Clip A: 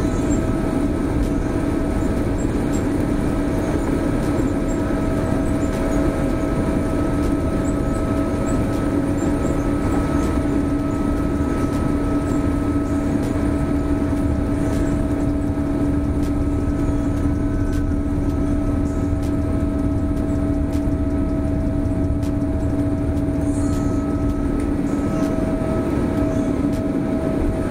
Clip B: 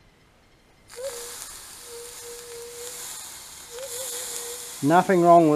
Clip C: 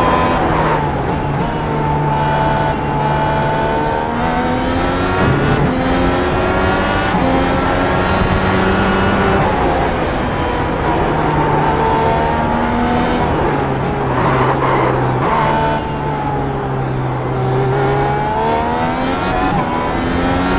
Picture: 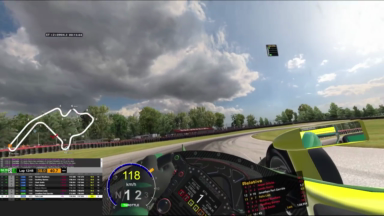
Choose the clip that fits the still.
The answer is C